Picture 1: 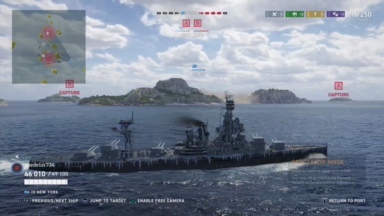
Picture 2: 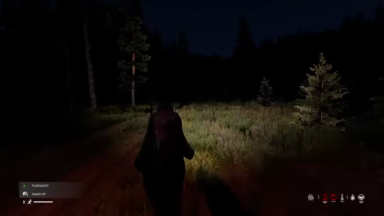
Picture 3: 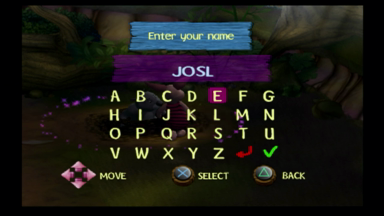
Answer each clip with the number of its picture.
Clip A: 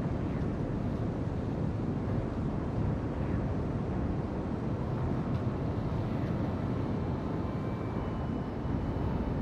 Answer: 1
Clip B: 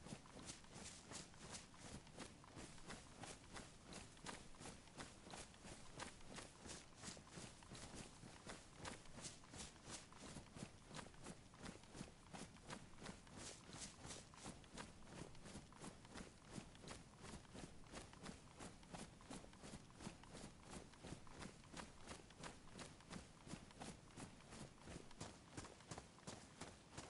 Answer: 2